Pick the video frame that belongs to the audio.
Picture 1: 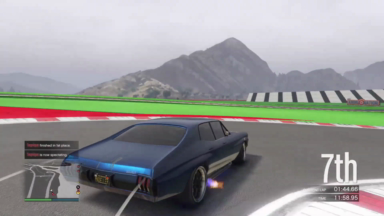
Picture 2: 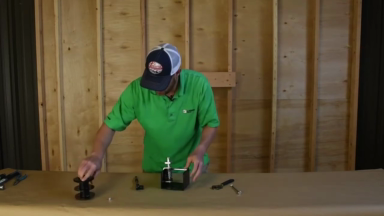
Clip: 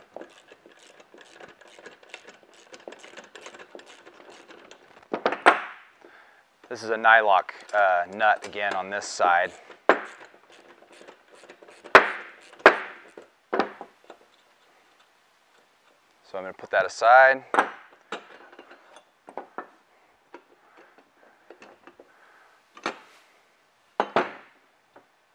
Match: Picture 2